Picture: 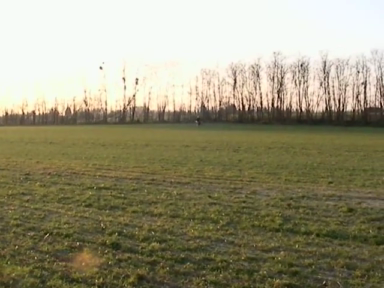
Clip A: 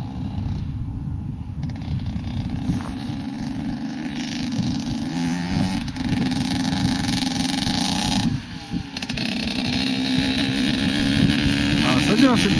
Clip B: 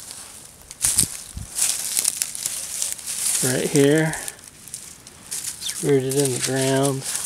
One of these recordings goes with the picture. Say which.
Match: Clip A